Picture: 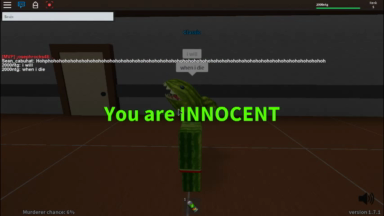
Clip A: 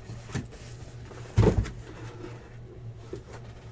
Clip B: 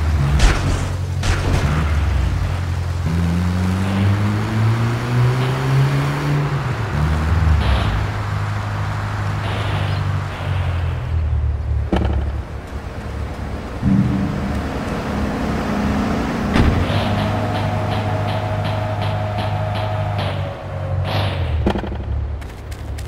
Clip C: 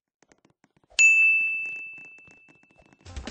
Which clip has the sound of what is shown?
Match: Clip C